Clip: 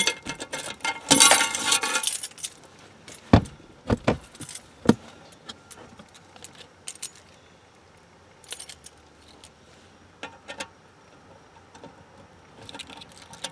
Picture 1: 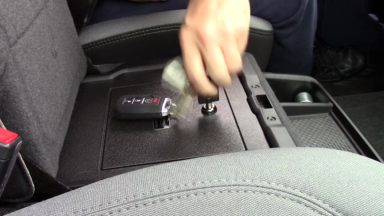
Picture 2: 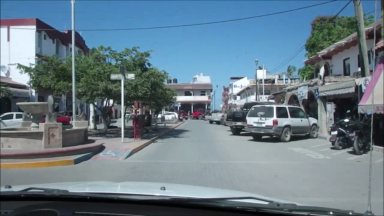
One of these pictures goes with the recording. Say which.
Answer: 1